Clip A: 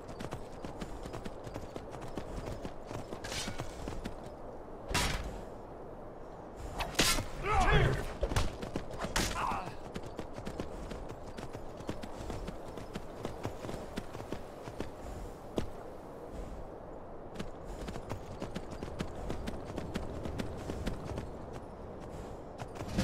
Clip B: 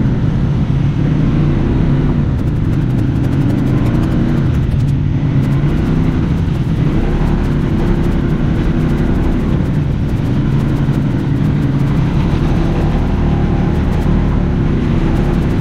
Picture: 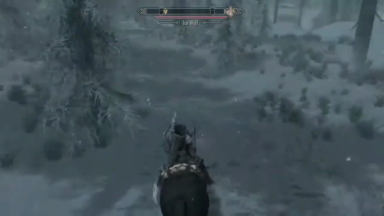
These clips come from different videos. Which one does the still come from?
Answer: A